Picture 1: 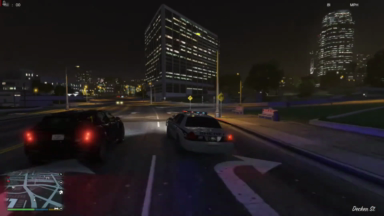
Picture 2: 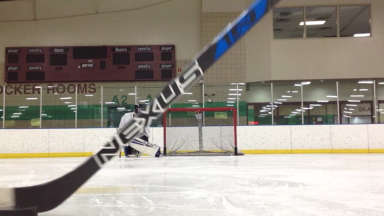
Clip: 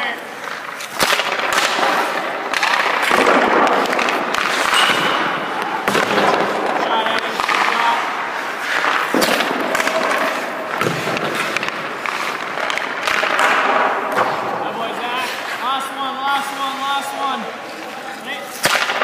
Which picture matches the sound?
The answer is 2